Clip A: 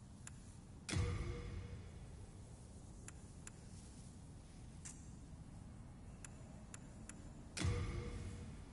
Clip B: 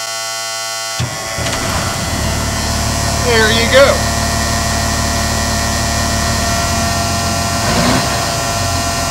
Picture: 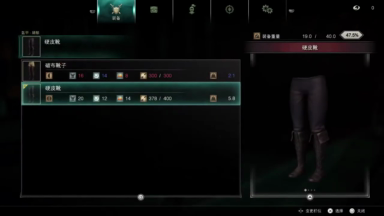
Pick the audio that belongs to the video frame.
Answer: A